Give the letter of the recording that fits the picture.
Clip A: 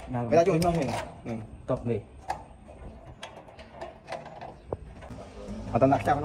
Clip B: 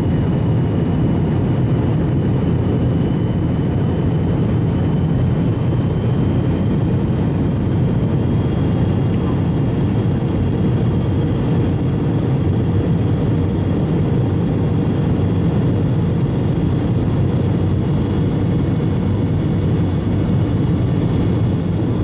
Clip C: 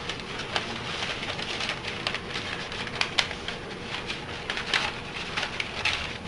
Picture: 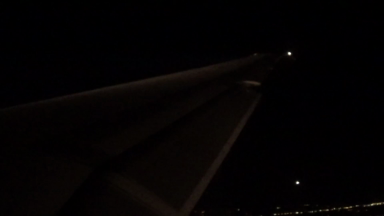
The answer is B